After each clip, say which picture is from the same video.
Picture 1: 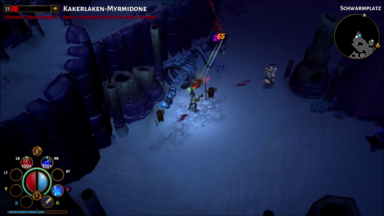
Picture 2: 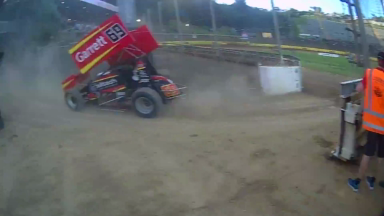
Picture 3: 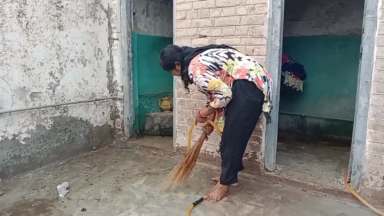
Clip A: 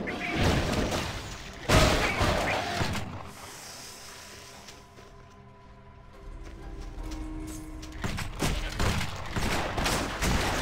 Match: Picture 1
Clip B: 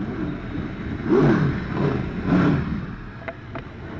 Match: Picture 2